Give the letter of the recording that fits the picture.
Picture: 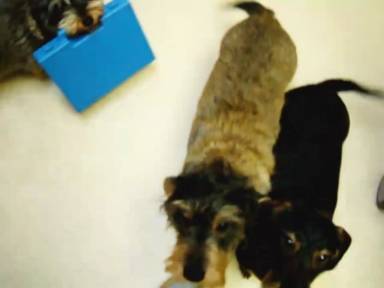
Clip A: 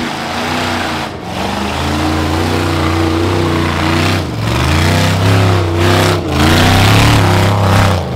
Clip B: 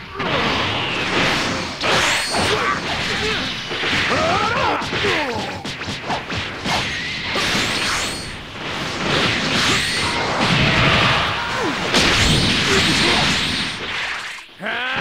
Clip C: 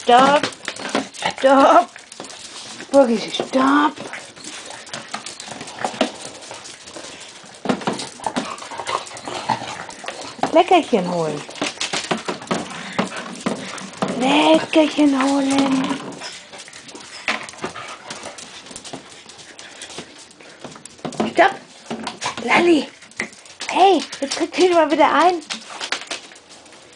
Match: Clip C